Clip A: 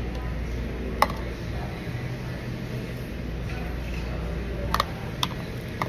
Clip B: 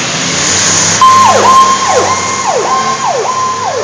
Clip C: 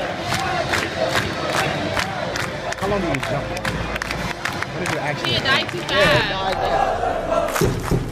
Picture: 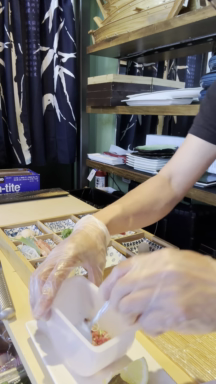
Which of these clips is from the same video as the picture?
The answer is A